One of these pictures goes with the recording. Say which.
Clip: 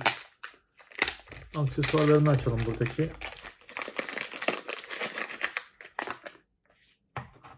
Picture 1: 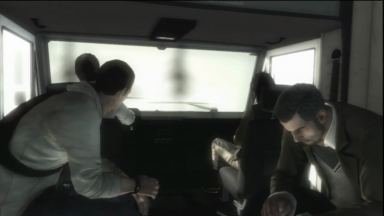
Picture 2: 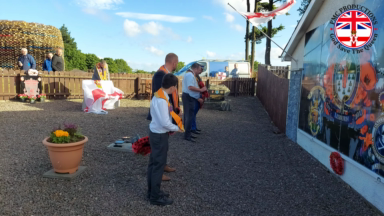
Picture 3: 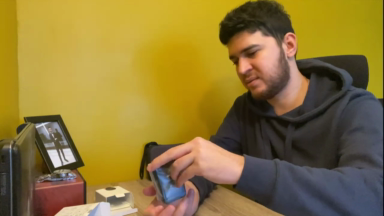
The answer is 3